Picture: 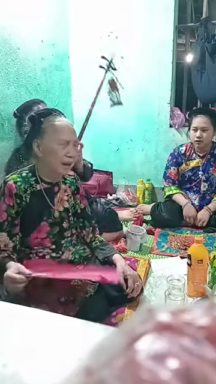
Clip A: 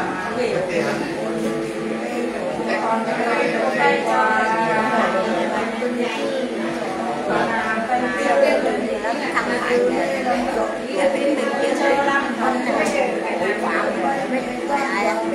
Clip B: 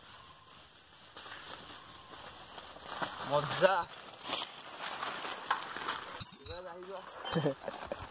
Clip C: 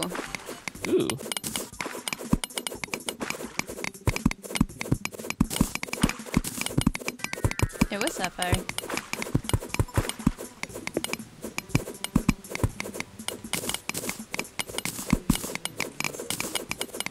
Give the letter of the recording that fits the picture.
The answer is A